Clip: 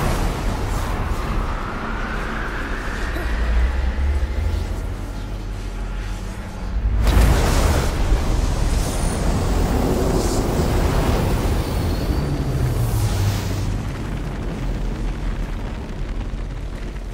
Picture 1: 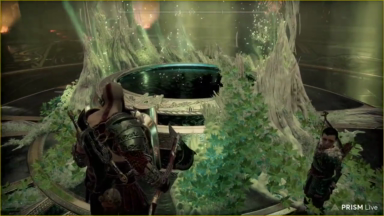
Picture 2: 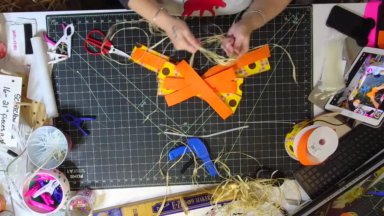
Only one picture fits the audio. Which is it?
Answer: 1